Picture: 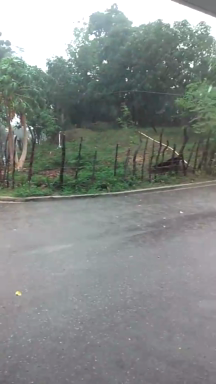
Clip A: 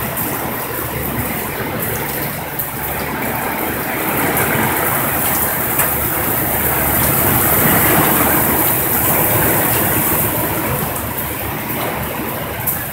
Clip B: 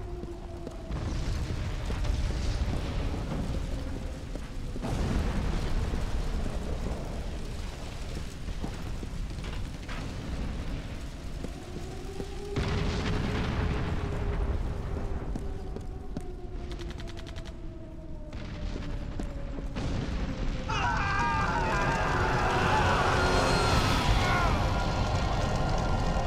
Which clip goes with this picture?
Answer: A